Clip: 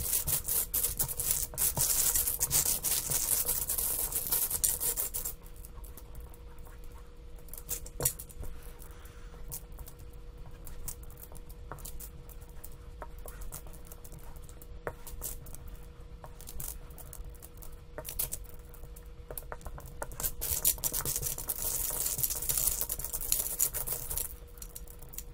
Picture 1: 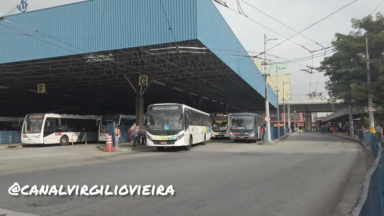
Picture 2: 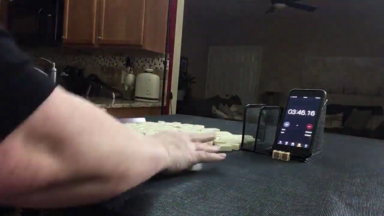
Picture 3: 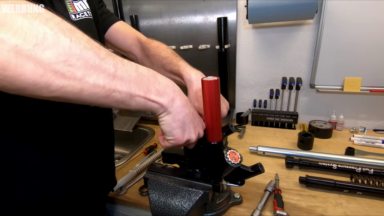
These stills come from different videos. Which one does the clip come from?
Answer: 2